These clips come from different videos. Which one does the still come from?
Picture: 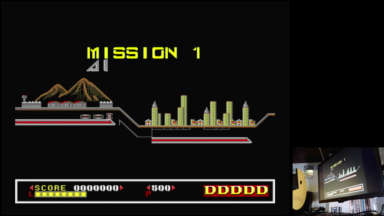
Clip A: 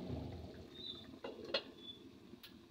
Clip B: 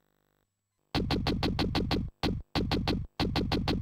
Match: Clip B